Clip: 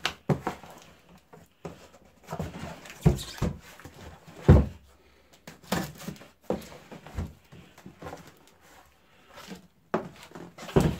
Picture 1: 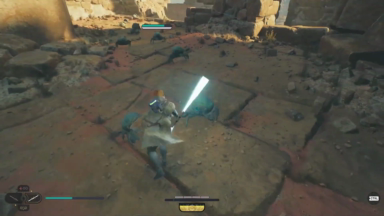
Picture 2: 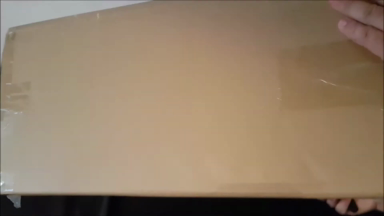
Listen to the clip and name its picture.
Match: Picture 2